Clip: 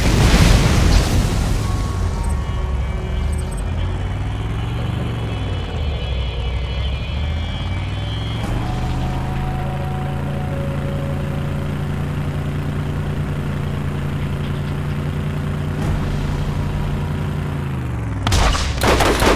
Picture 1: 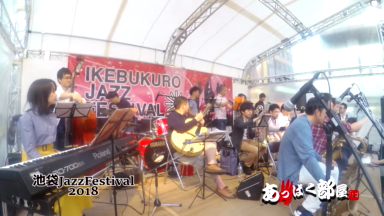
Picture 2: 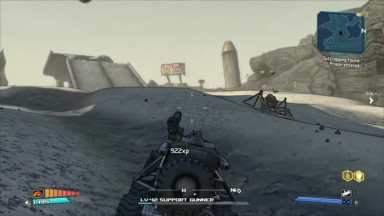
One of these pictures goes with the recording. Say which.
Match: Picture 2